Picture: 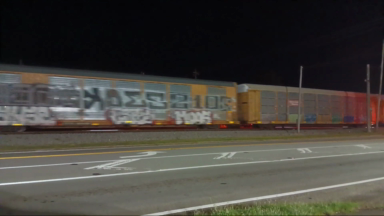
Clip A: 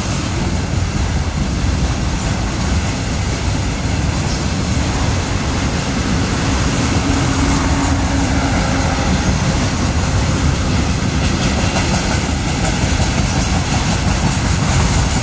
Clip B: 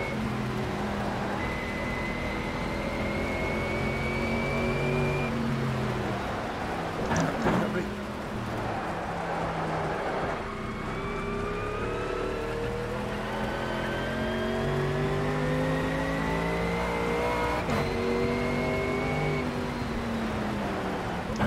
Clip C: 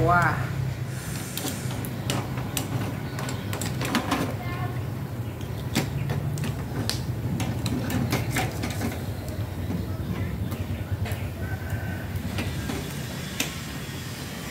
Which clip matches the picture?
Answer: A